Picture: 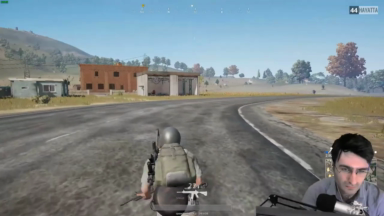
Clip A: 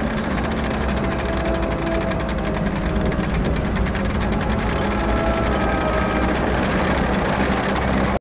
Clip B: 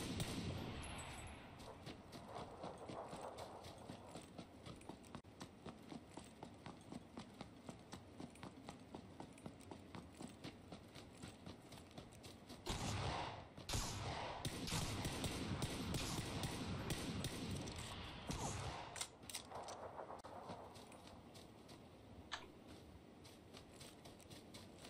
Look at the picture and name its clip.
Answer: B